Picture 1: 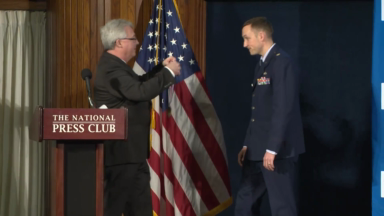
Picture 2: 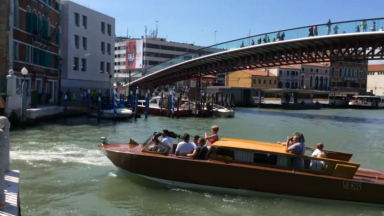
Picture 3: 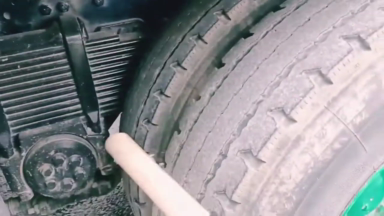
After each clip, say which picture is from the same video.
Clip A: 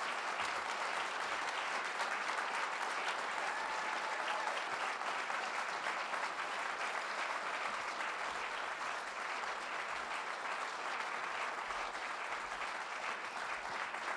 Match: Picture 1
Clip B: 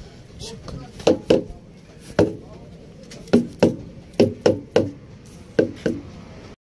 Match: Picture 3